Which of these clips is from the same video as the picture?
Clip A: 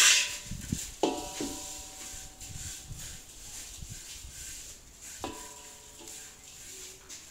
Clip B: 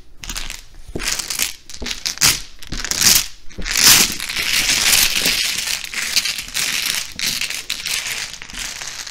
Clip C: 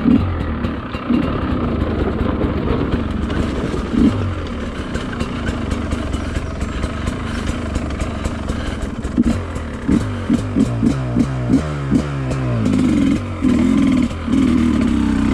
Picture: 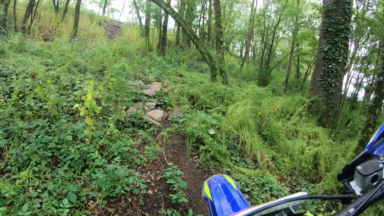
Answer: C